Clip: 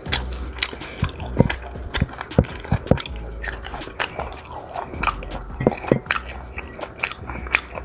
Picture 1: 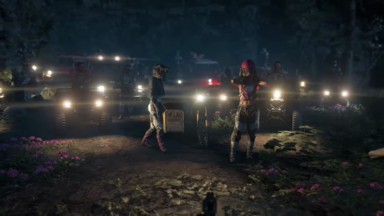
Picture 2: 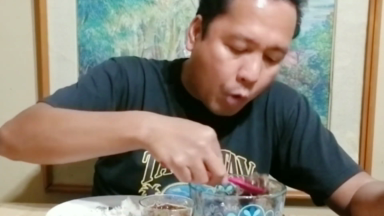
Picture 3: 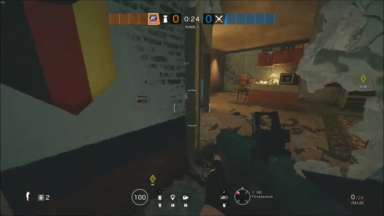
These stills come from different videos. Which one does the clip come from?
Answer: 2